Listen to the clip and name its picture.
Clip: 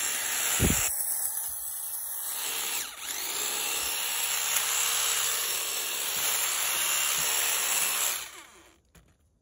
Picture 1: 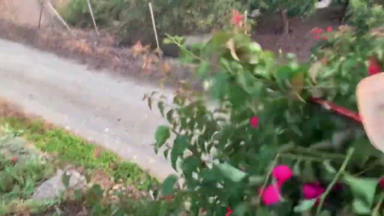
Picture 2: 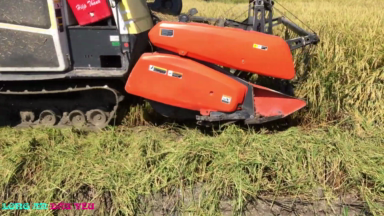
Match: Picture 1